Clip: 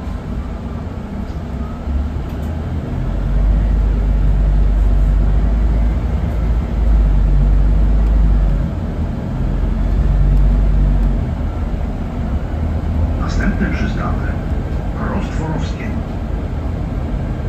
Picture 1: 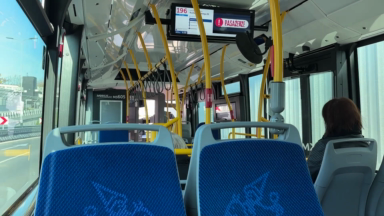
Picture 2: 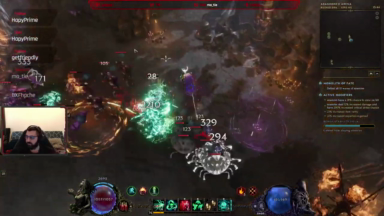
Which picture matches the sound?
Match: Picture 1